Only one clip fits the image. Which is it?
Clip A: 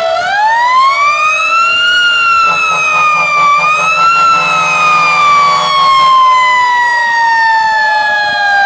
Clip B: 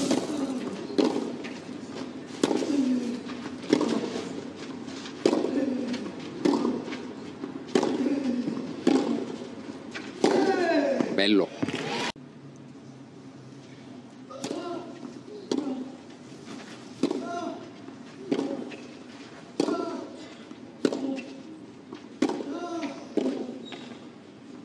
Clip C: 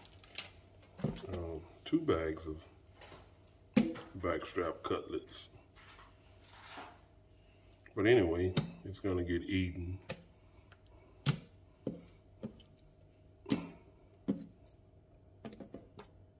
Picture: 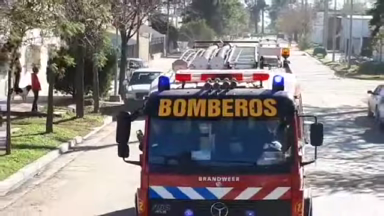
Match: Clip A